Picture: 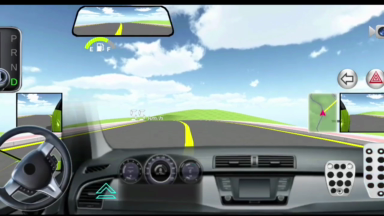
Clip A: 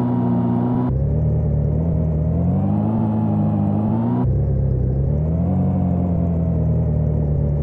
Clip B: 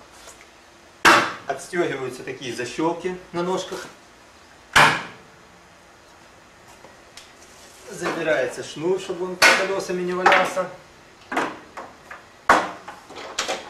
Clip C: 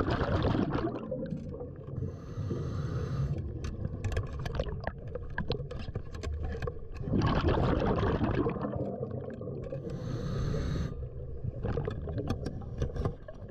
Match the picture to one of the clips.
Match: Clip A